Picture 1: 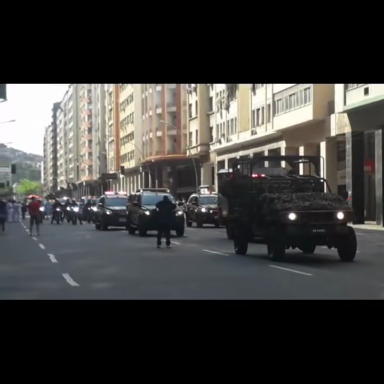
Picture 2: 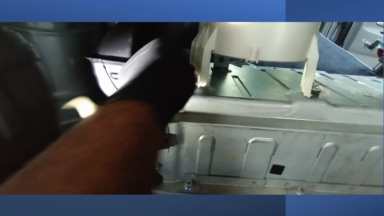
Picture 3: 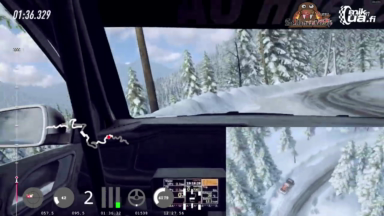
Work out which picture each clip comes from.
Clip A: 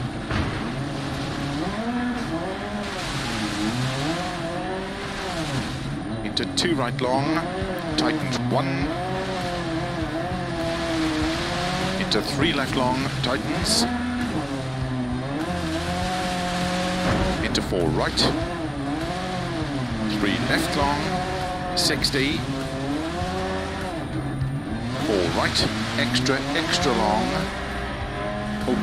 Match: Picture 3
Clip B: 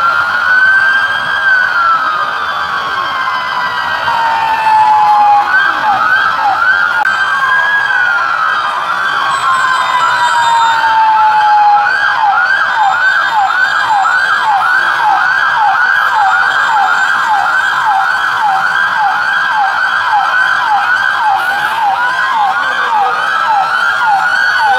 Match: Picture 1